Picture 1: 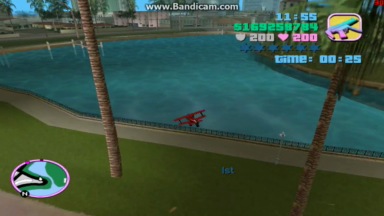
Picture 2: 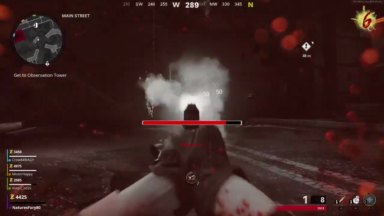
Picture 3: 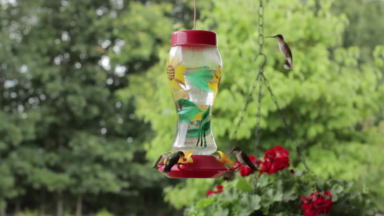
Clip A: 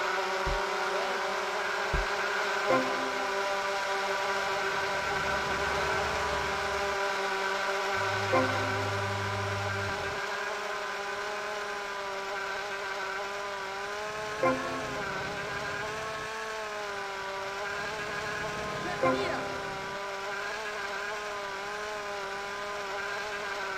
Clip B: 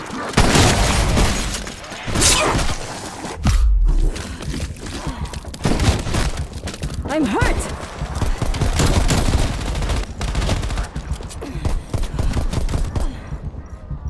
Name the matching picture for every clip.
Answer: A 1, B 2